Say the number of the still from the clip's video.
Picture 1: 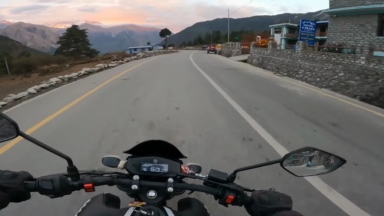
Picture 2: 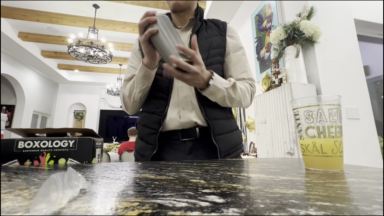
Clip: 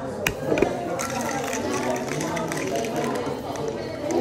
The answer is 2